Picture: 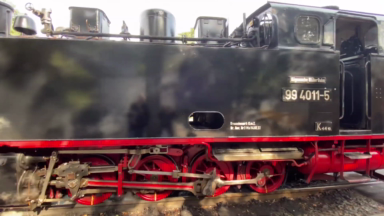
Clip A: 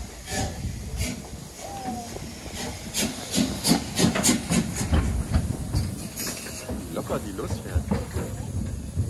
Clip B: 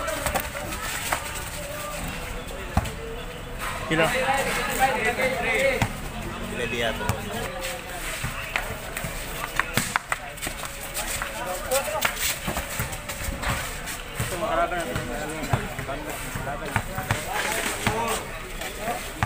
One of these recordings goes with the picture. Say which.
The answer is A